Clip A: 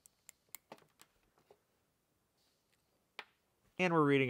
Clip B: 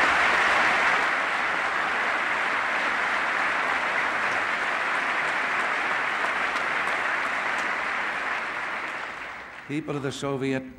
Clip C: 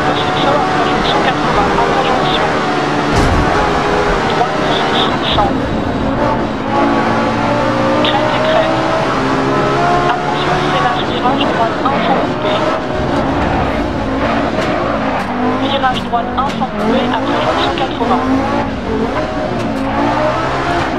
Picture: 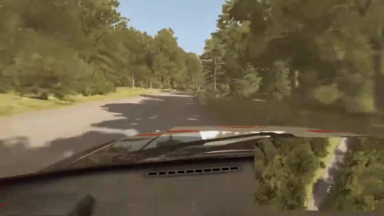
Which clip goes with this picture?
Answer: C